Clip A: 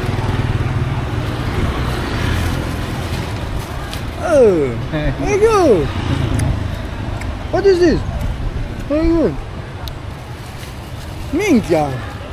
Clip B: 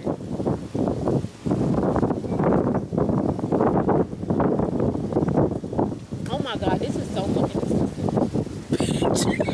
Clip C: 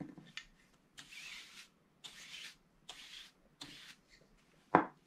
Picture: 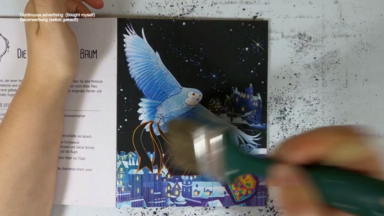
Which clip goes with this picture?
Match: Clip C